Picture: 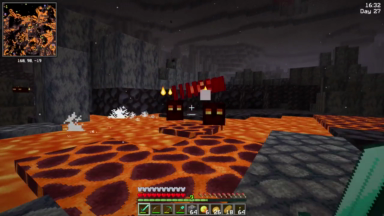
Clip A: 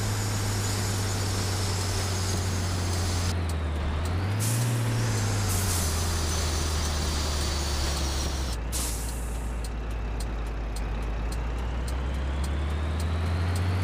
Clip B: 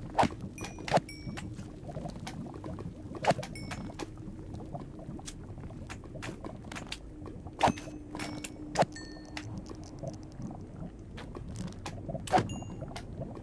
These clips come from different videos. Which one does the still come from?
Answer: B